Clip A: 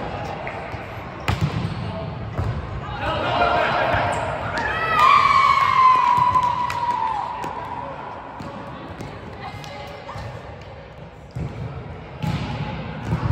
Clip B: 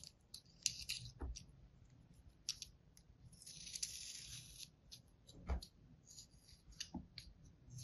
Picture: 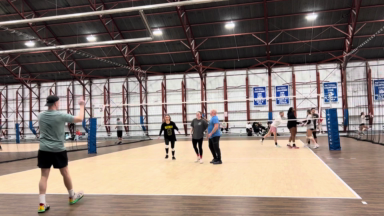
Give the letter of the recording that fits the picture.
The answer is A